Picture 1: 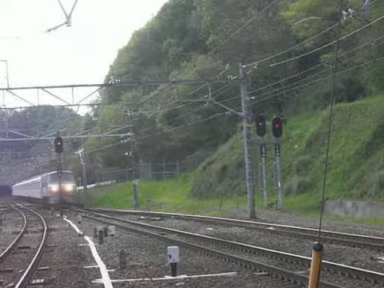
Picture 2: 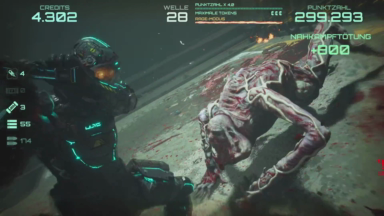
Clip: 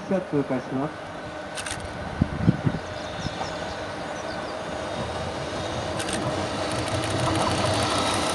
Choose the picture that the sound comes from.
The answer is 1